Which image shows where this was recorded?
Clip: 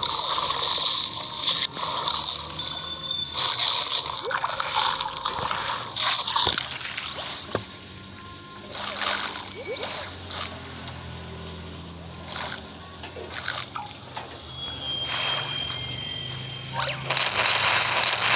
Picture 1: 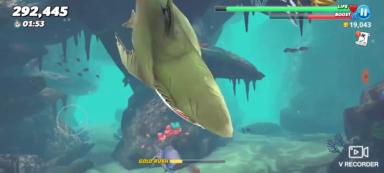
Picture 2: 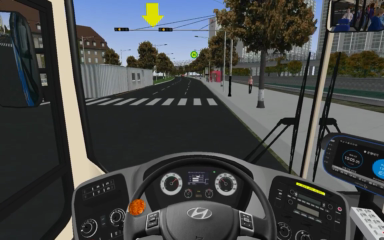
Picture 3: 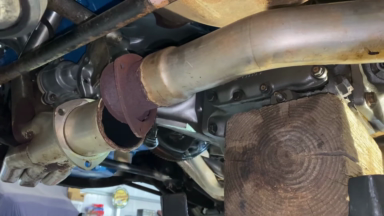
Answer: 1